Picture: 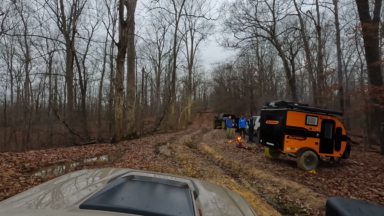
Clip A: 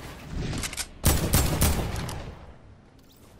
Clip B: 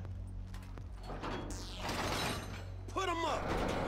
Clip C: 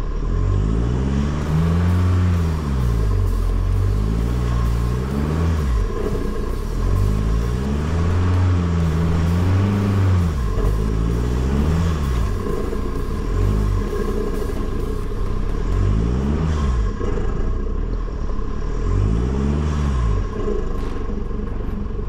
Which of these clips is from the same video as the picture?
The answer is C